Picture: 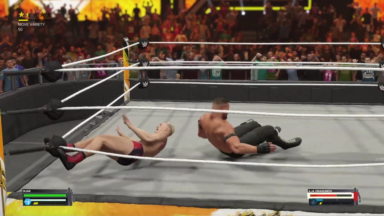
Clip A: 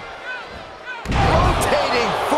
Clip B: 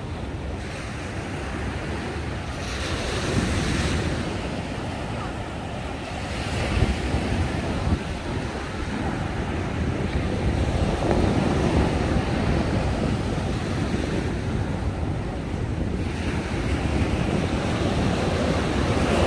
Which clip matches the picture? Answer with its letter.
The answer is A